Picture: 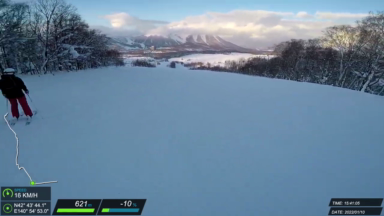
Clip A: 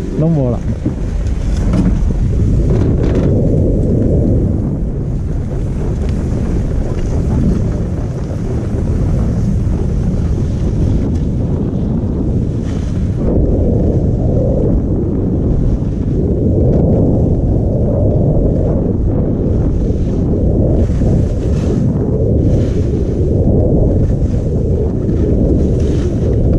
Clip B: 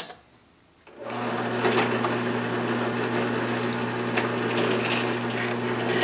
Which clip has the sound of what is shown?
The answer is A